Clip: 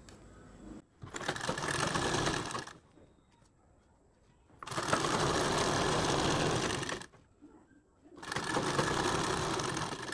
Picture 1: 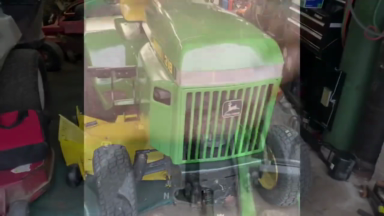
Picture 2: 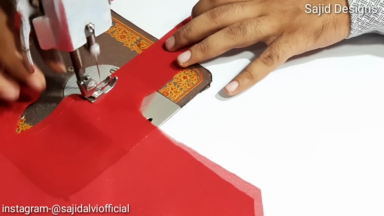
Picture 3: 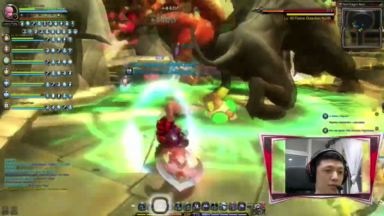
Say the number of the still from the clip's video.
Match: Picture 2